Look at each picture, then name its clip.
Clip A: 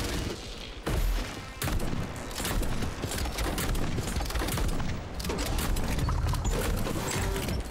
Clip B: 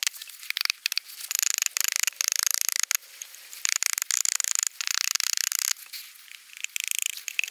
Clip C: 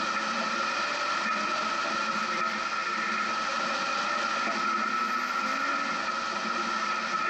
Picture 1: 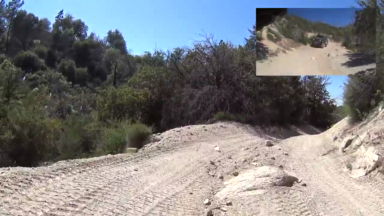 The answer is C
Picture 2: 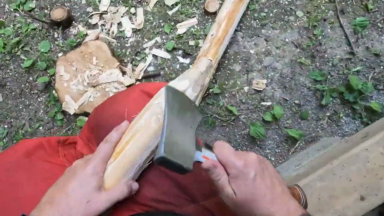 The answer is B